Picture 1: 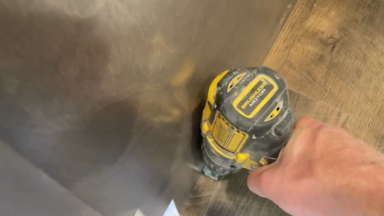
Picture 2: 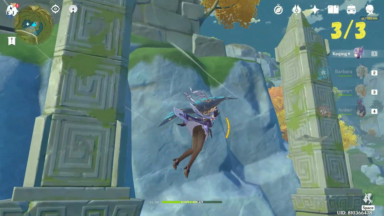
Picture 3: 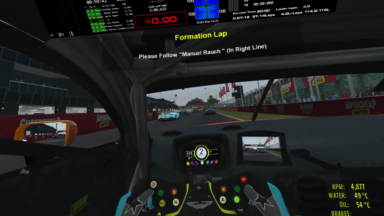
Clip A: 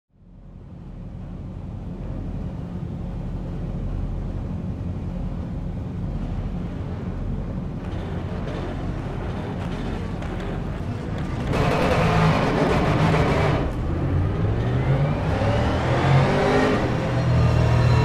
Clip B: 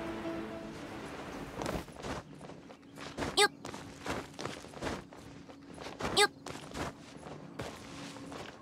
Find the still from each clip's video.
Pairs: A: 3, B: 2